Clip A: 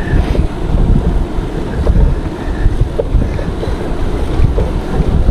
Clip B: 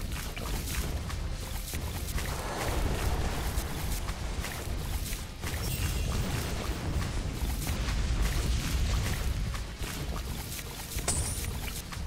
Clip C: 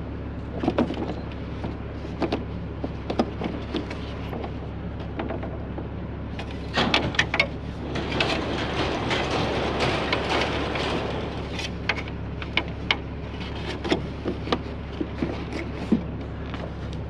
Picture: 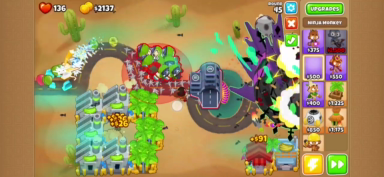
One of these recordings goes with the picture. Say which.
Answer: B